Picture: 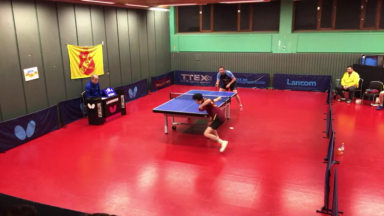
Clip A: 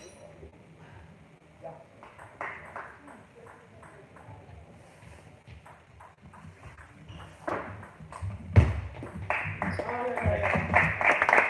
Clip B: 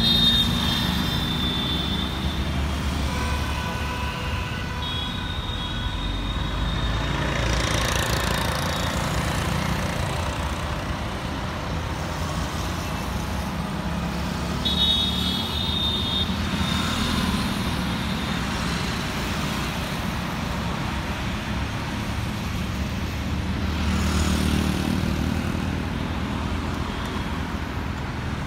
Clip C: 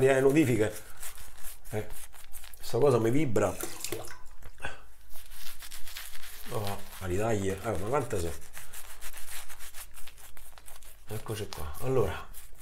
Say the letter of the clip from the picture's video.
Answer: A